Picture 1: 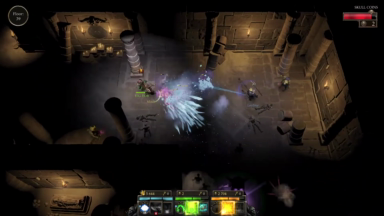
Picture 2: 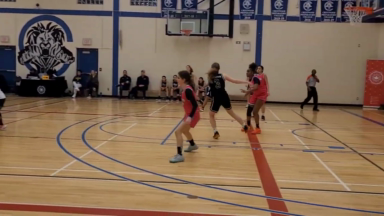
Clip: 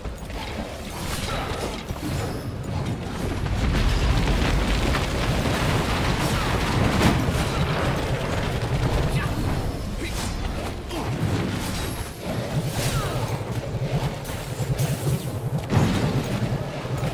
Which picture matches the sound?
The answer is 1